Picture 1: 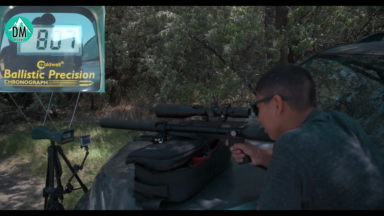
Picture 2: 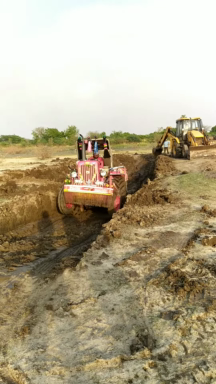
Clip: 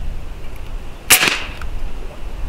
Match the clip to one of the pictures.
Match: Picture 1